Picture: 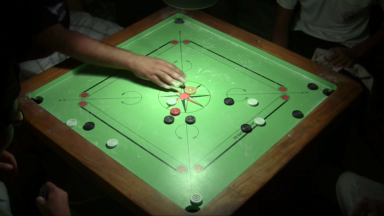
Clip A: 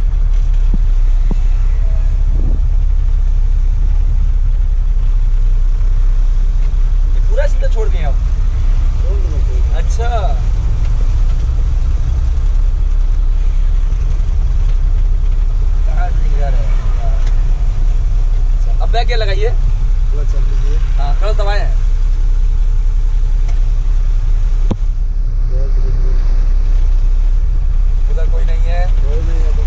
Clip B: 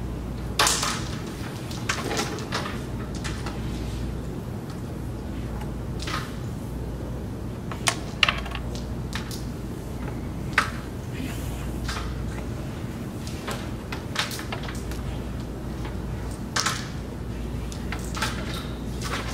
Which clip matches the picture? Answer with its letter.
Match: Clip B